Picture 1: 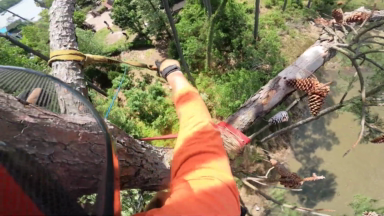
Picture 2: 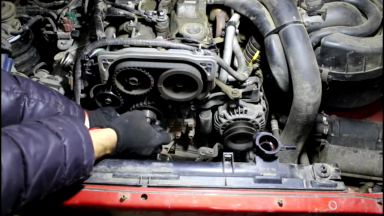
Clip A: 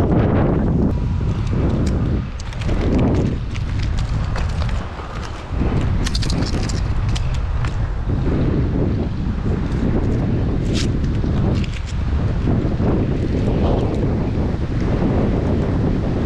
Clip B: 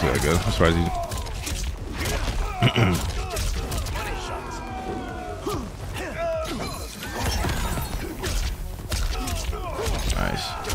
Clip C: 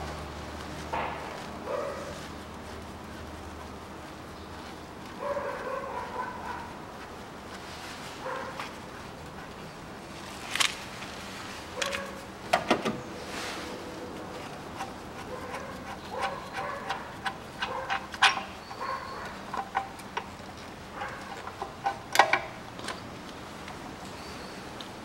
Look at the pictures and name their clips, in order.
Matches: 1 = A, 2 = C